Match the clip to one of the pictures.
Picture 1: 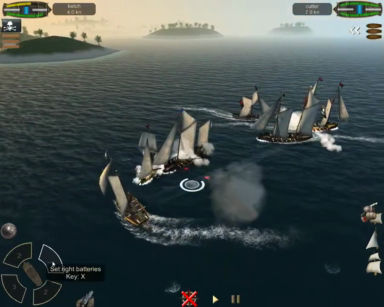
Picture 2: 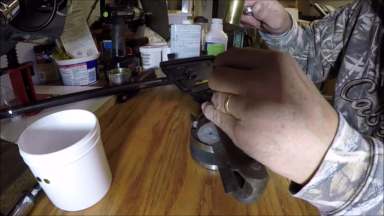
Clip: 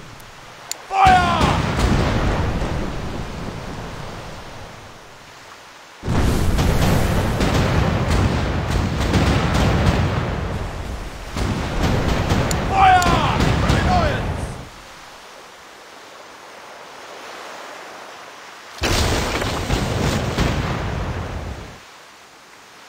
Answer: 1